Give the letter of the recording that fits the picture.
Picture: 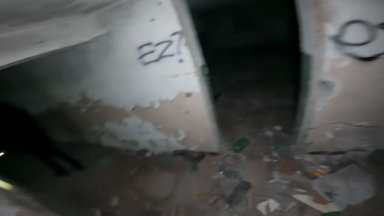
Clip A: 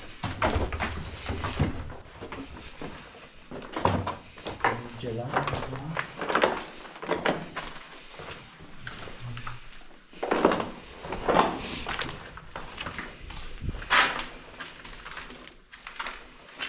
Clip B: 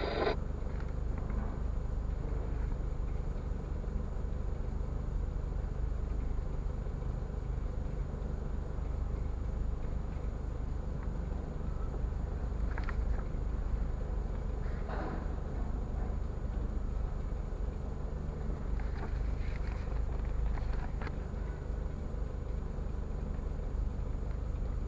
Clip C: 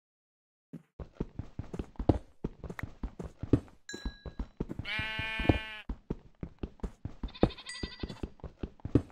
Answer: A